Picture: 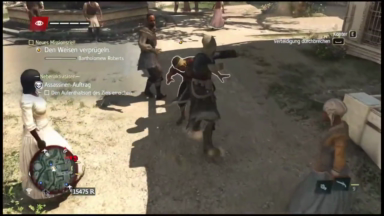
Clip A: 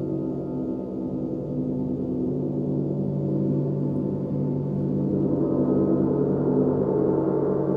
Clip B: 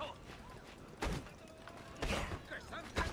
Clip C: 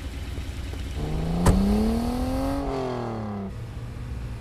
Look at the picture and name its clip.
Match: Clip B